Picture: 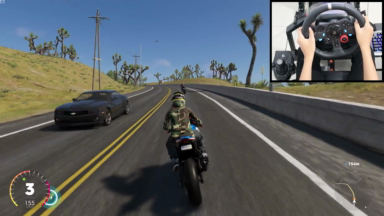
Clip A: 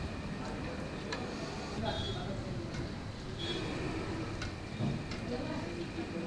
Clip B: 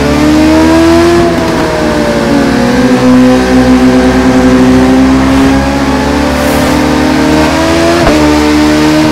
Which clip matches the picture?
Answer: B